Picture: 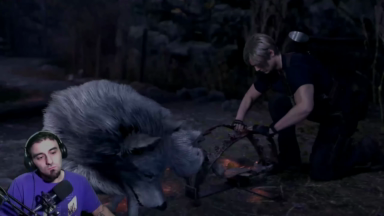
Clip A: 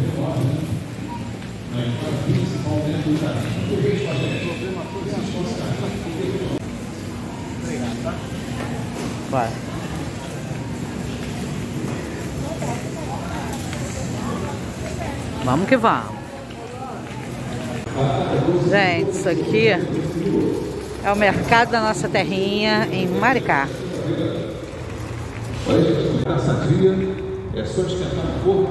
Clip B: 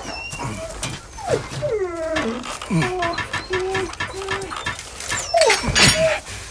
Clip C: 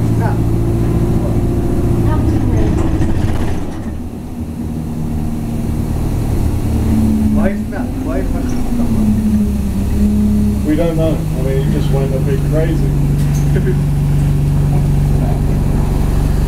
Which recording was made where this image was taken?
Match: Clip B